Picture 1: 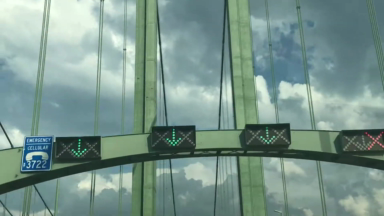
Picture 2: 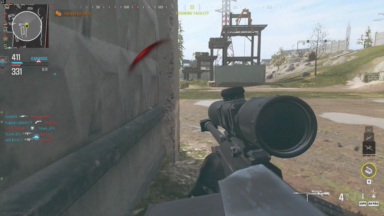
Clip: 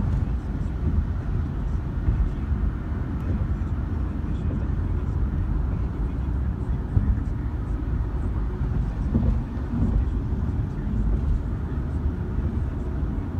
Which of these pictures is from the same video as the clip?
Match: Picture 1